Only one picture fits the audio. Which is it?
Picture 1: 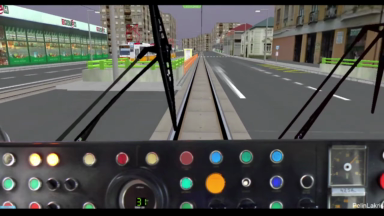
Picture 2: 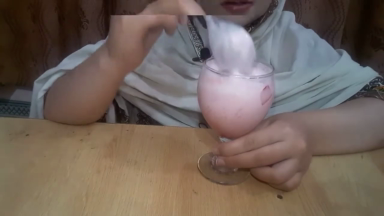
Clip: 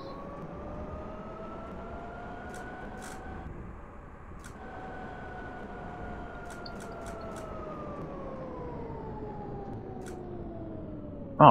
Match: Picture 1